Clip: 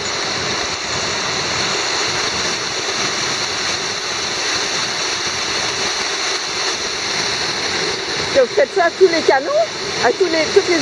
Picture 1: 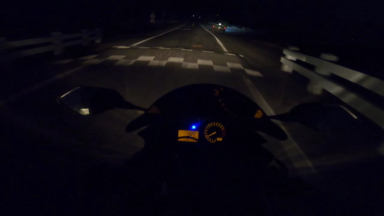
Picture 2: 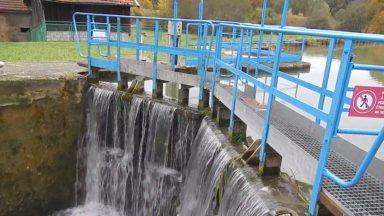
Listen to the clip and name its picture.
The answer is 2